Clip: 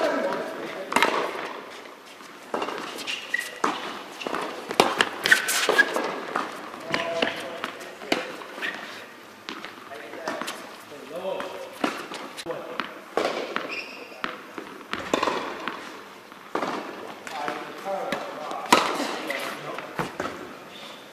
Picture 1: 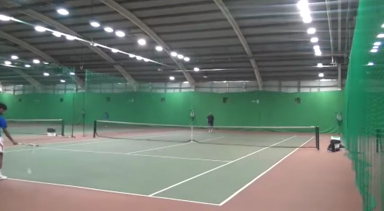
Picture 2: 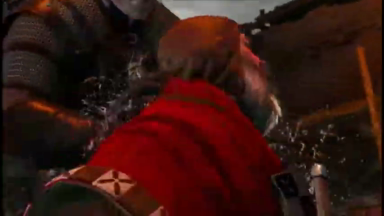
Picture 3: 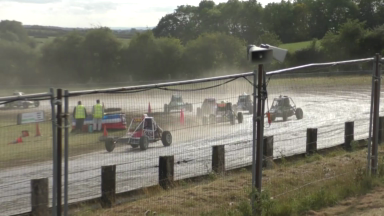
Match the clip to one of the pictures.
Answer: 1